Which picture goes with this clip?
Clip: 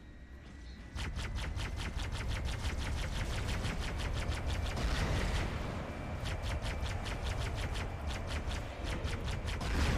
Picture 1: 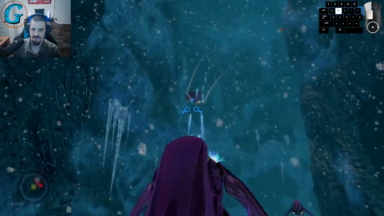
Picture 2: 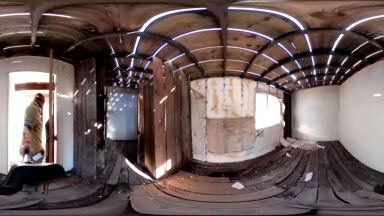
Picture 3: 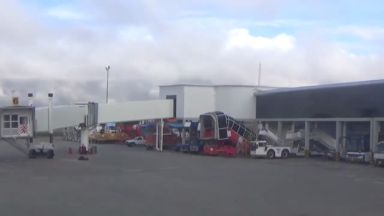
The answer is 1